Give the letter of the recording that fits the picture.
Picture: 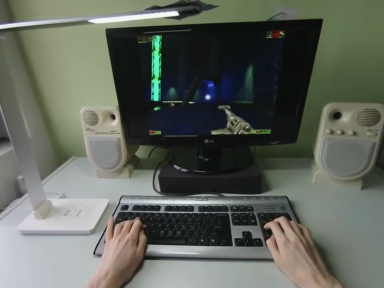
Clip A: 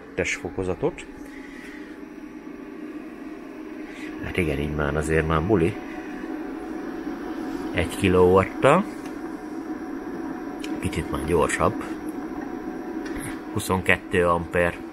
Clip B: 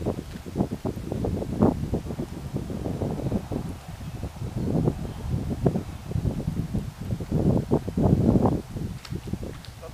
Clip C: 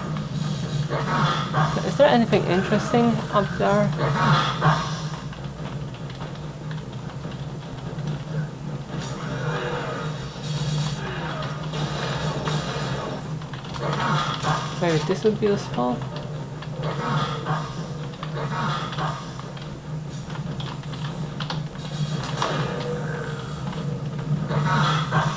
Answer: C